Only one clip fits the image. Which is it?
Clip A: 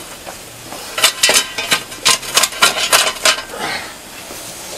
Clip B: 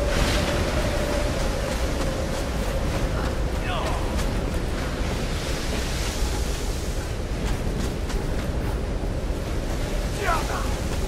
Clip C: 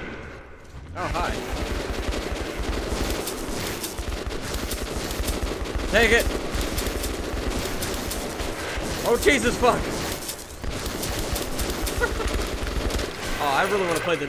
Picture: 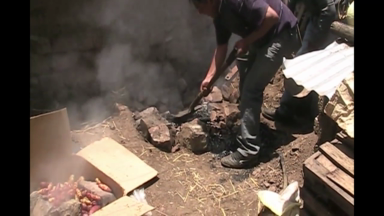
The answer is A